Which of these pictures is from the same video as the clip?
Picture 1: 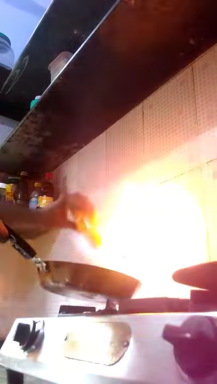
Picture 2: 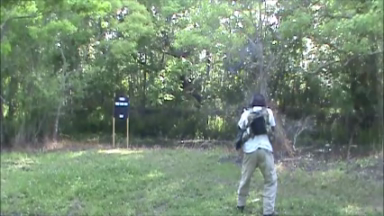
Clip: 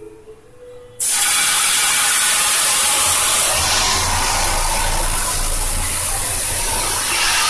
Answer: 1